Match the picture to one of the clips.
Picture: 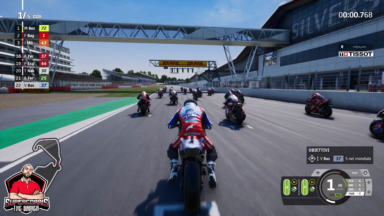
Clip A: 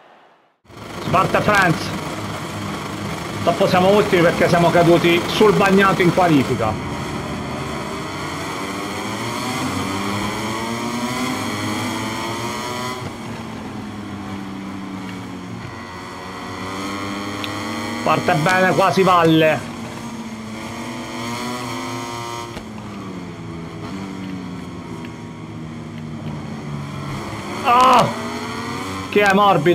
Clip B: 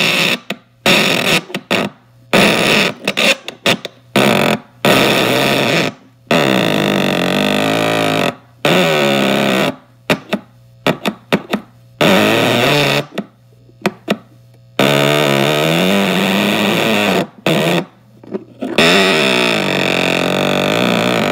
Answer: A